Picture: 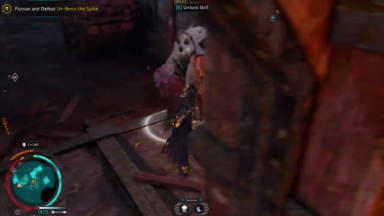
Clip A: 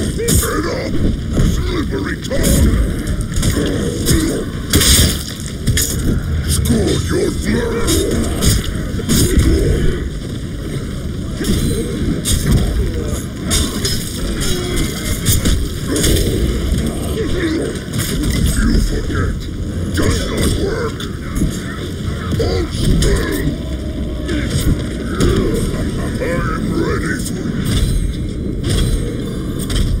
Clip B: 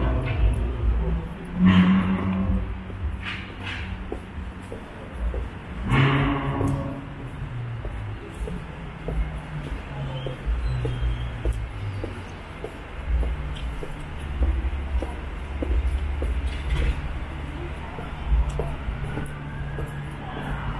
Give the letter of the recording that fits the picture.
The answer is A